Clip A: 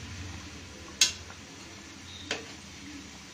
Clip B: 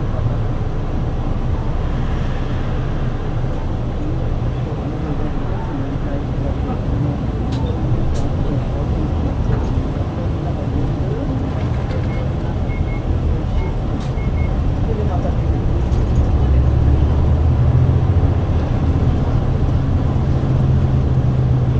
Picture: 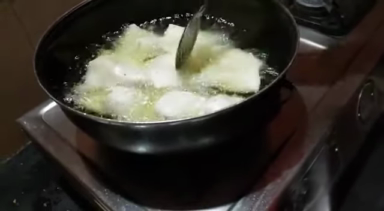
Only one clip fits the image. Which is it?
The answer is A